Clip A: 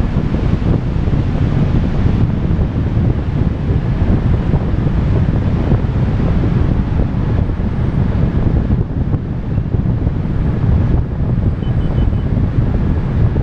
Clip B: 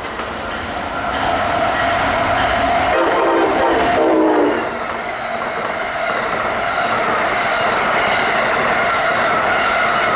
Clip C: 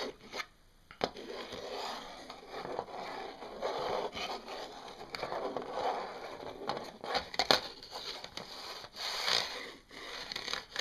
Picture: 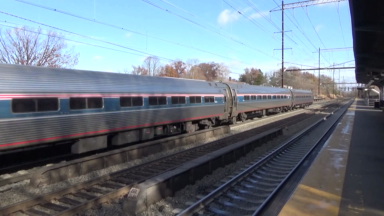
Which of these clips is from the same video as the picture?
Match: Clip B